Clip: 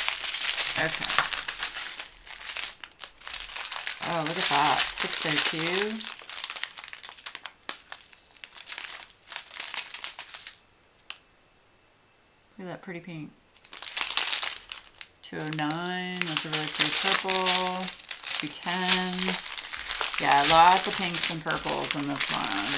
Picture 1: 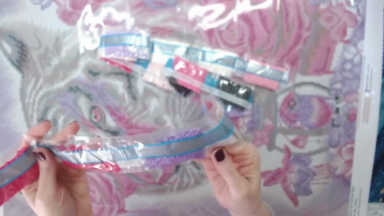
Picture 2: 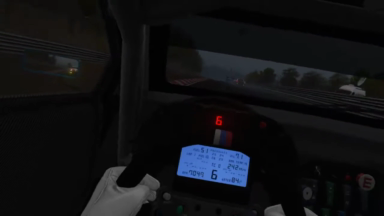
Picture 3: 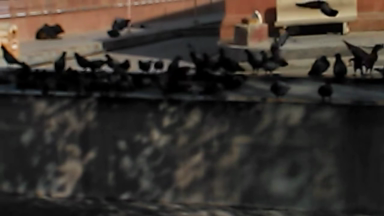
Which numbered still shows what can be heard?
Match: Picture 1